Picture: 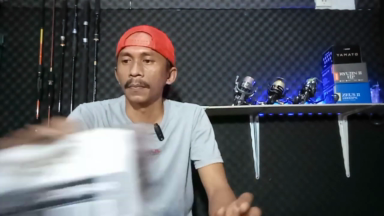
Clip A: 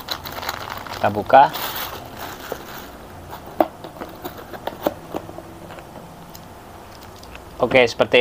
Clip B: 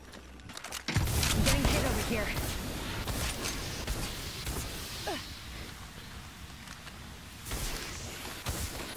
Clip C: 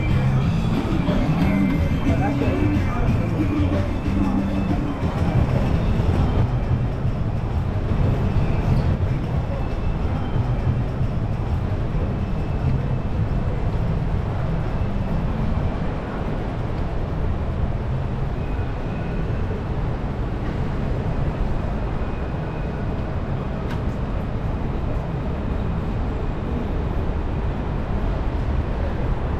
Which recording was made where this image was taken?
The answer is A